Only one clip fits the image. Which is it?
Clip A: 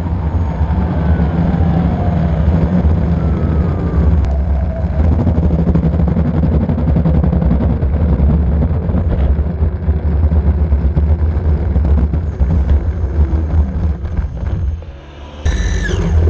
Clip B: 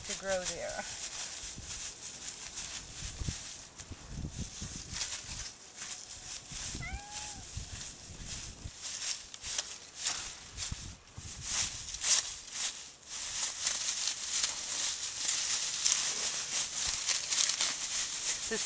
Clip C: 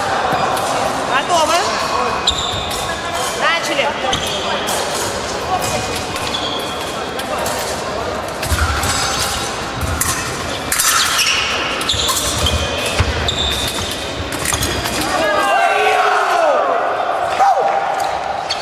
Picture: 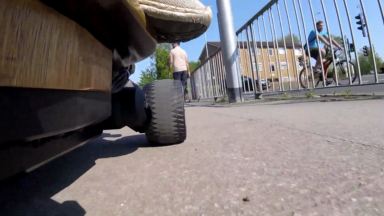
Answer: A